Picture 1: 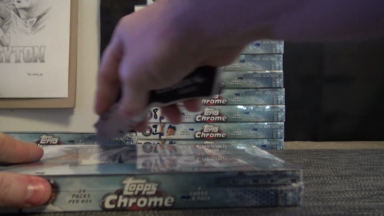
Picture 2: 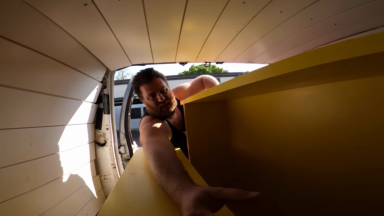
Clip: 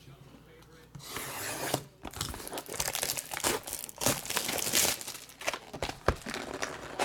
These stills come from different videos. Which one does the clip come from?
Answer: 1